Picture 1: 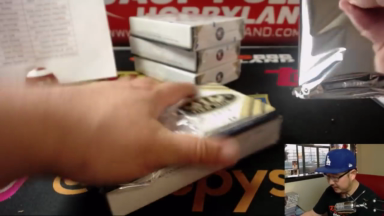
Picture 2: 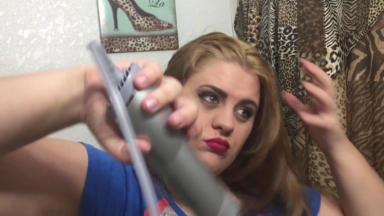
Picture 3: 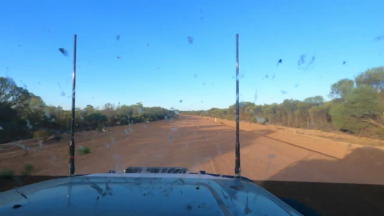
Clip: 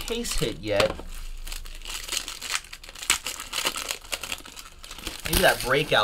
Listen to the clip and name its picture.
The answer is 1